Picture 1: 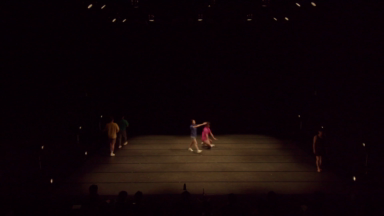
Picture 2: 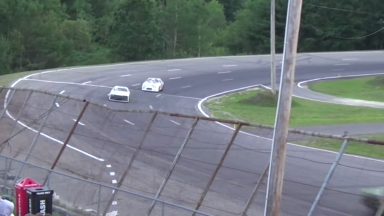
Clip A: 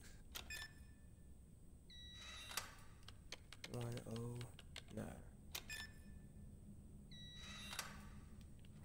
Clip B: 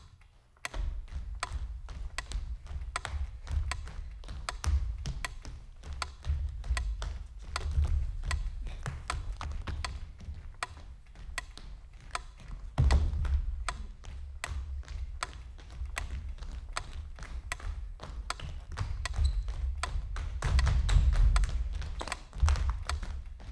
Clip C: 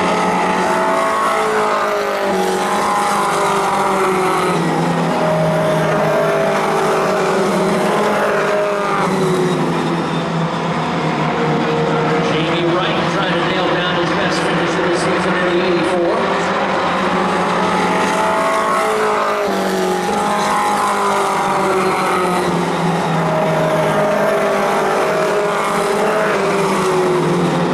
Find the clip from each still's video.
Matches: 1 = B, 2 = C